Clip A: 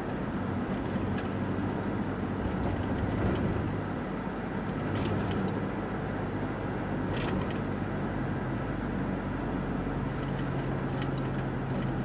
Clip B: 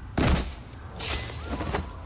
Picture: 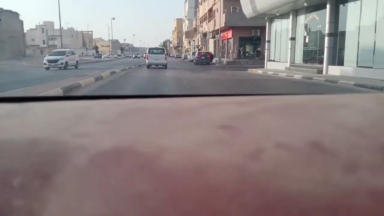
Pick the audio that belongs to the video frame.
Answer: A